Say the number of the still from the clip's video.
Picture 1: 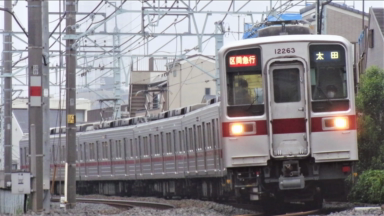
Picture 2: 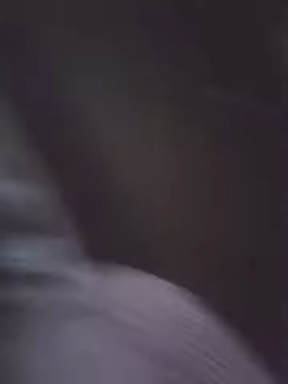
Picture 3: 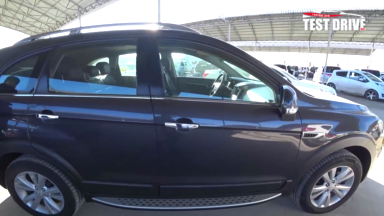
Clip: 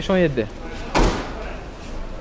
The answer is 3